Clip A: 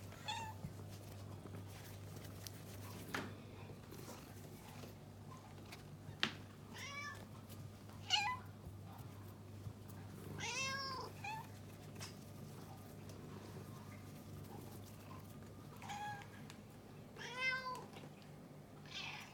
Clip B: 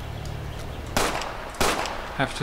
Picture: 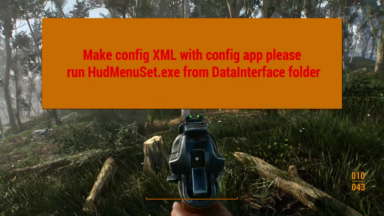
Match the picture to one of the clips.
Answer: B